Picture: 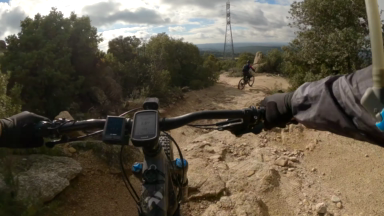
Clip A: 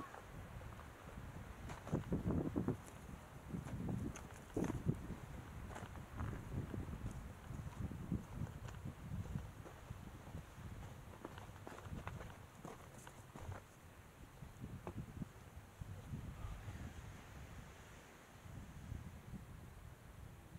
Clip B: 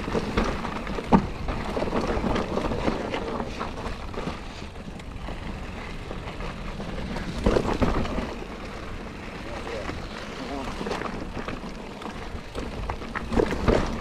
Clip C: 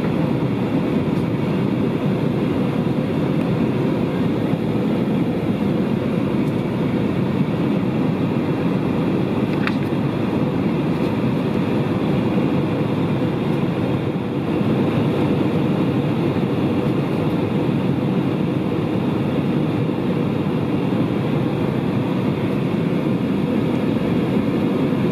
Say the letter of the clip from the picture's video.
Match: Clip B